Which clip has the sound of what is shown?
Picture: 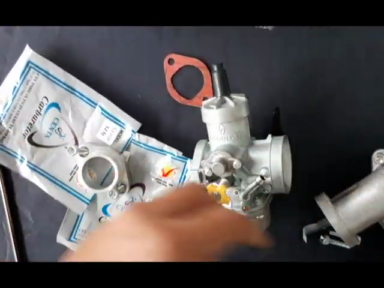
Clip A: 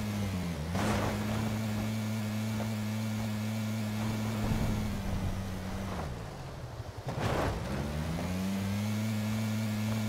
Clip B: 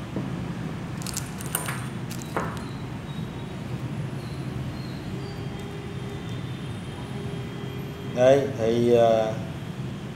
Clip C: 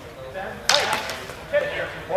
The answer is B